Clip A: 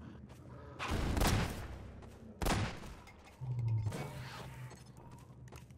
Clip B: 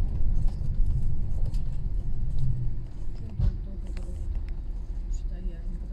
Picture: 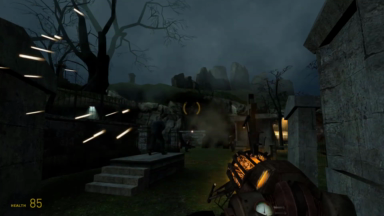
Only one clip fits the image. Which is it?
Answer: A